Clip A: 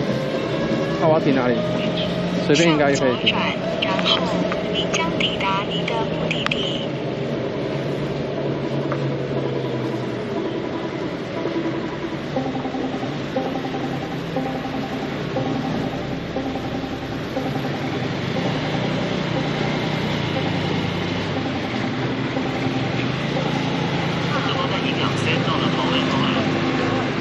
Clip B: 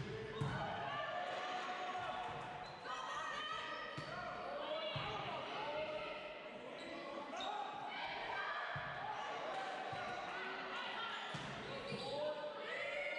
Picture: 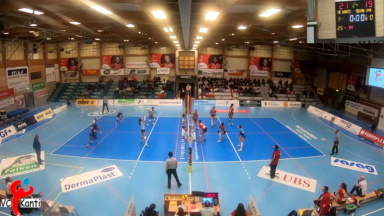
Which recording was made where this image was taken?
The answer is B